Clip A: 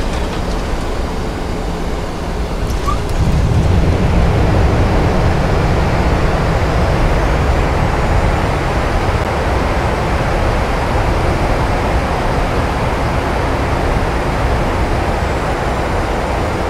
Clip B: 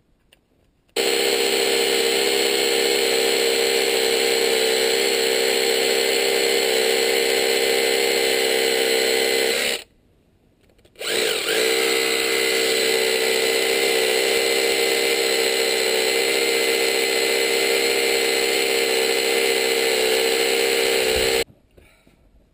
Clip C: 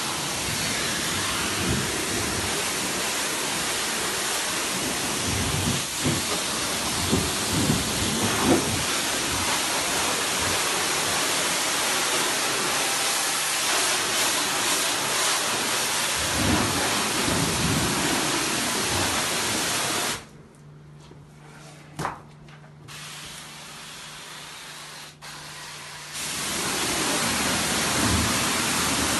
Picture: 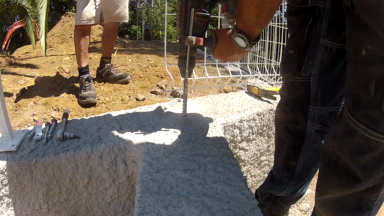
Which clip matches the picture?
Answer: B